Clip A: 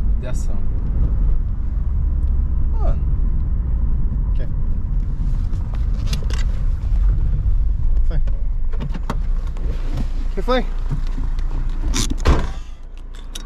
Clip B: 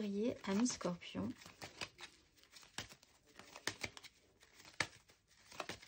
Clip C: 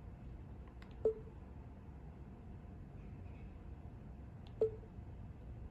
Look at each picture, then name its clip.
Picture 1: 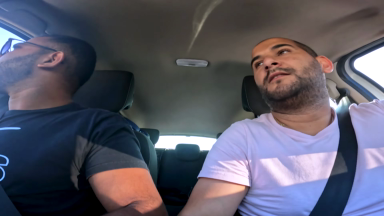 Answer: A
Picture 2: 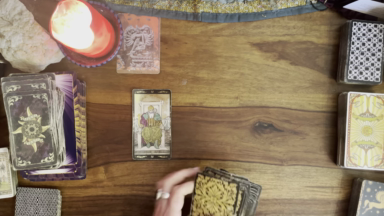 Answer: B